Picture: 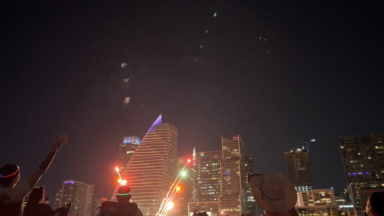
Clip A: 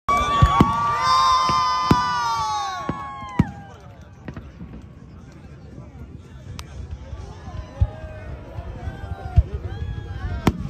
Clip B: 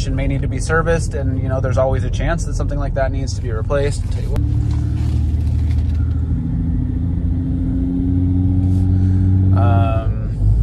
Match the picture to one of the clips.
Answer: A